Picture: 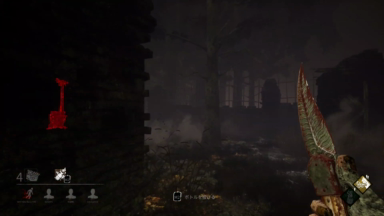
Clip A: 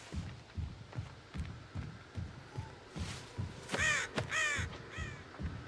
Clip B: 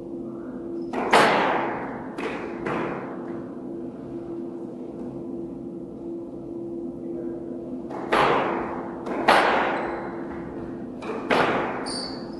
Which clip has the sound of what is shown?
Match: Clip A